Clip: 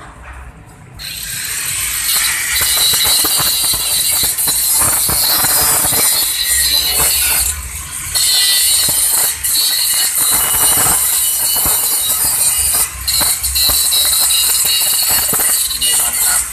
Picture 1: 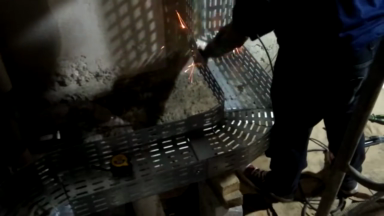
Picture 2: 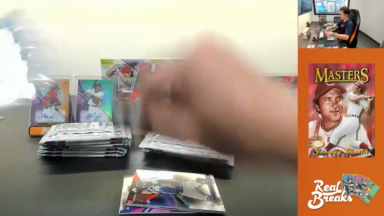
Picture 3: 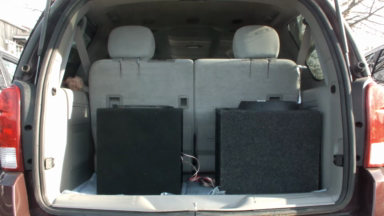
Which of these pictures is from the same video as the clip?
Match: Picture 1